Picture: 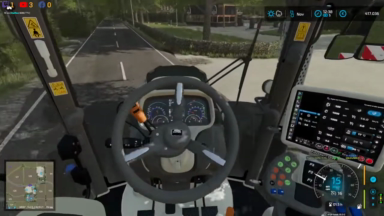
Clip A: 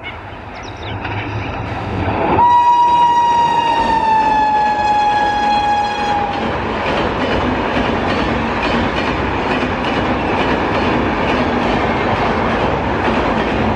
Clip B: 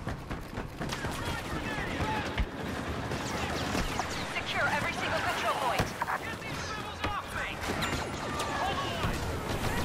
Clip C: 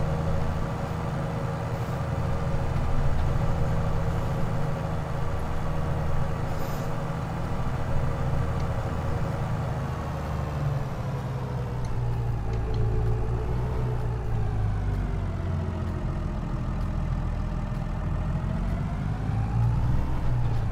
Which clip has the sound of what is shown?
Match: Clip C